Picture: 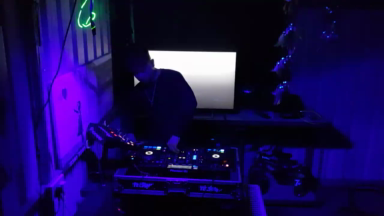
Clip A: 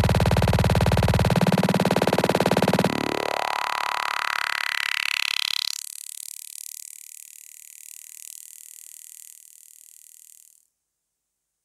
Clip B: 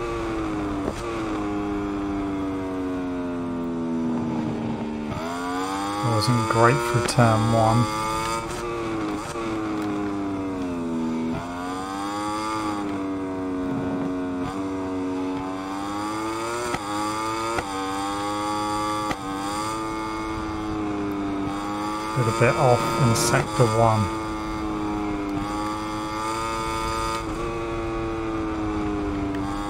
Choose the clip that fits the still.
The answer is A